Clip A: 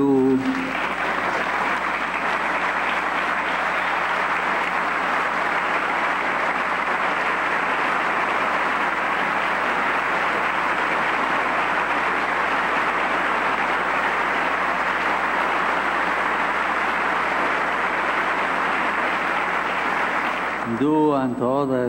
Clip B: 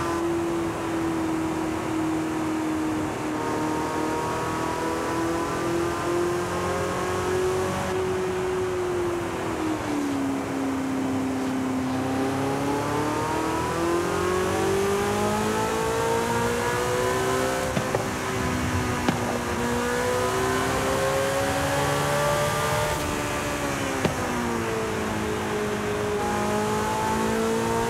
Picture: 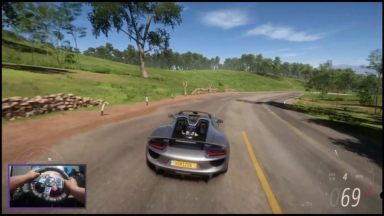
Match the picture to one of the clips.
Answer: B